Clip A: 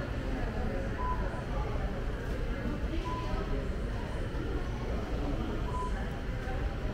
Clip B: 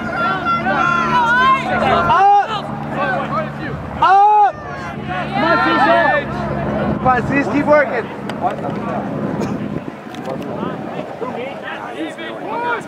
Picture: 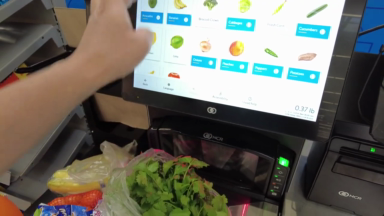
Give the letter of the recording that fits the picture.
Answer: A